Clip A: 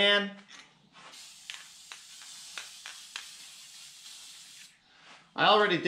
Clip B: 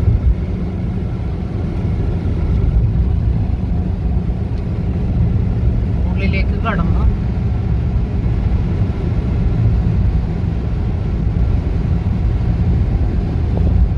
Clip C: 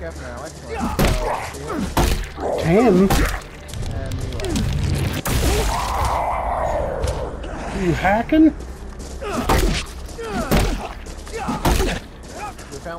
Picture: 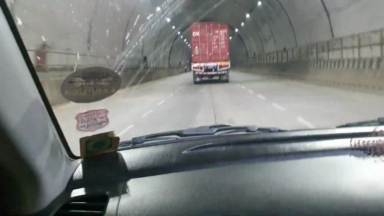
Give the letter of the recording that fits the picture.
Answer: B